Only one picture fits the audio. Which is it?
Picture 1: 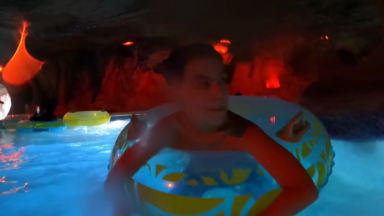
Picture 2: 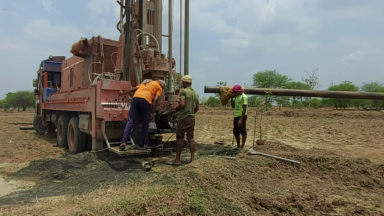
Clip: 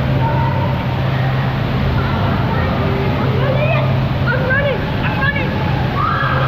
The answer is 1